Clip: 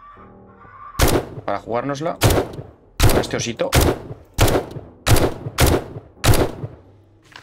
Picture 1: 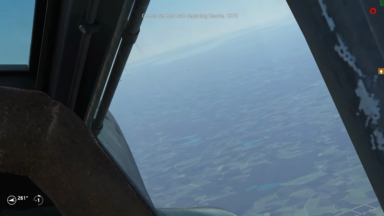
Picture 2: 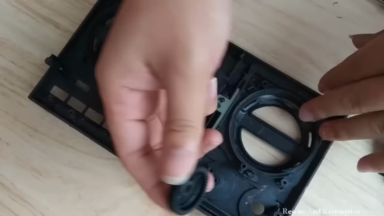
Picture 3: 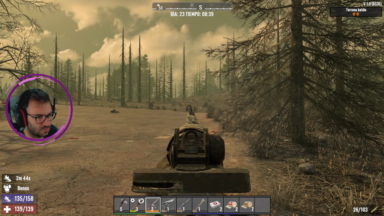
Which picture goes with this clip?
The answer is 3